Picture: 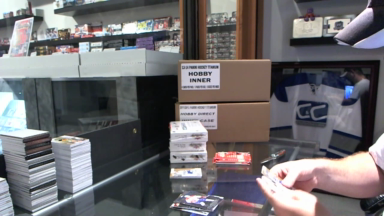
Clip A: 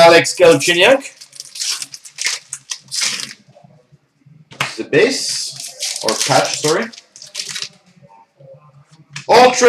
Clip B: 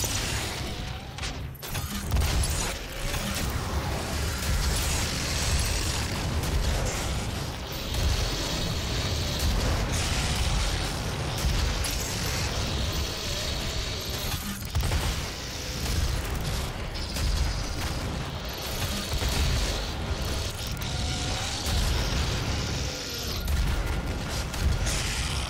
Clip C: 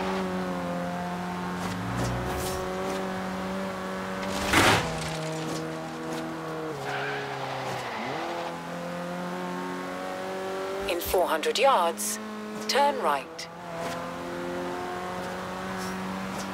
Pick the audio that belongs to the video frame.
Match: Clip A